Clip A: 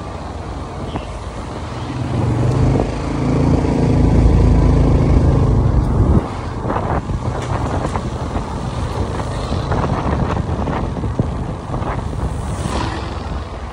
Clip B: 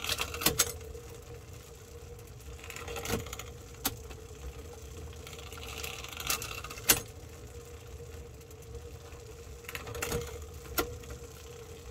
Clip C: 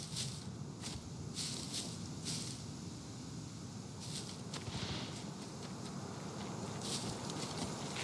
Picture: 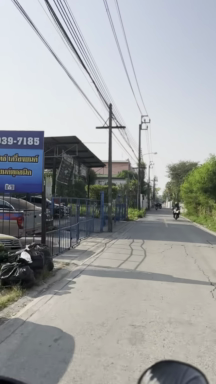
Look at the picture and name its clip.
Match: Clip A